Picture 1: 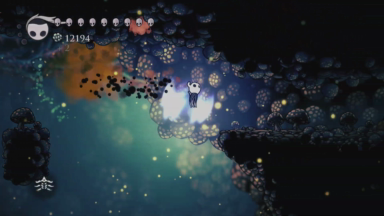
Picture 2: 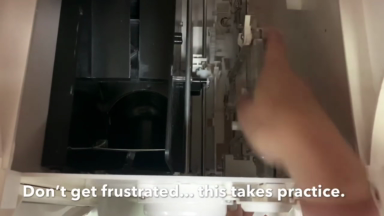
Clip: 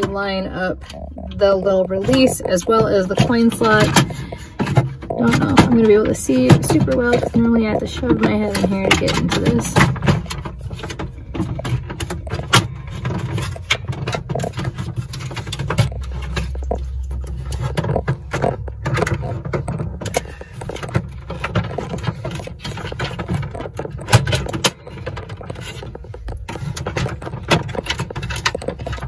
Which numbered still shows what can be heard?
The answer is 2